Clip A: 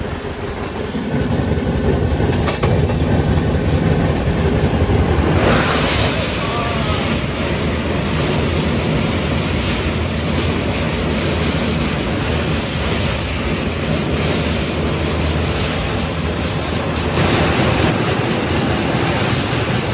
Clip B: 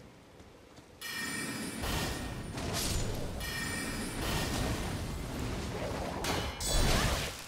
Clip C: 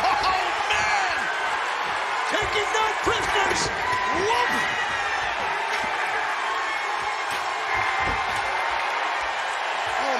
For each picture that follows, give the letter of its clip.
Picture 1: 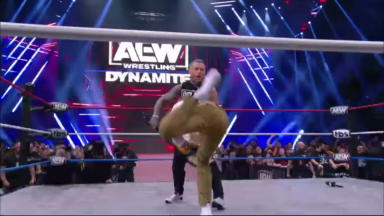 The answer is C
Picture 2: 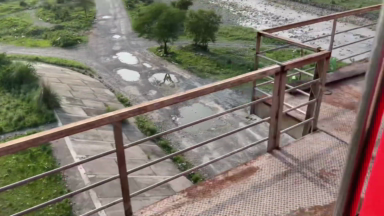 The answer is A